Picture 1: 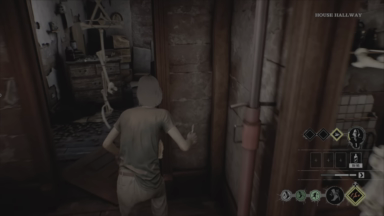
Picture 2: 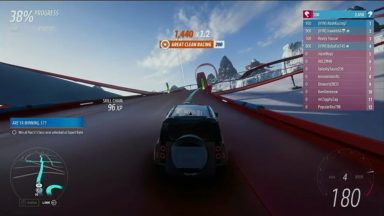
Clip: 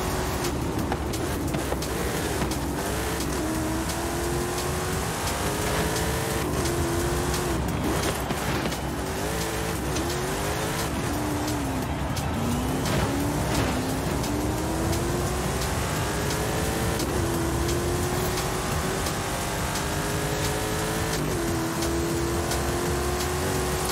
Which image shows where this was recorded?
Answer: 2